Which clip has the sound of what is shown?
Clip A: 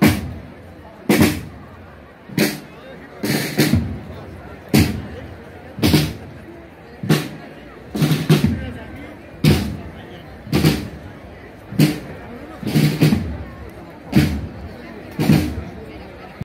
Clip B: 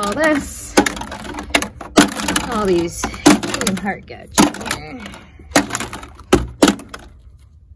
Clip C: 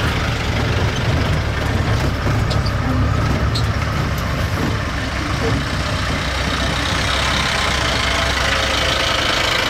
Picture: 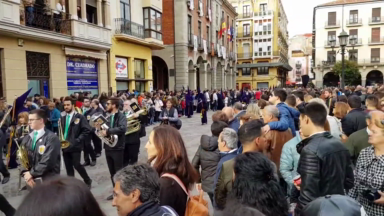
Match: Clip A